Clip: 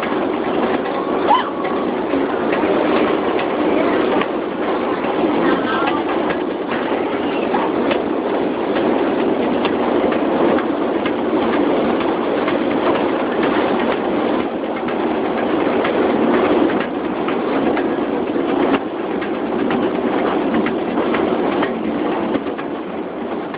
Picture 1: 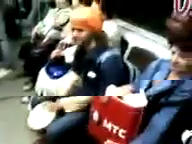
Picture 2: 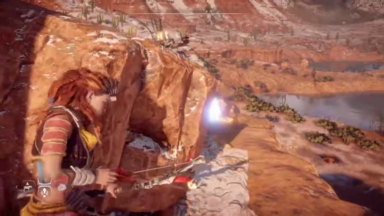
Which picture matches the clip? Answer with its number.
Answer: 1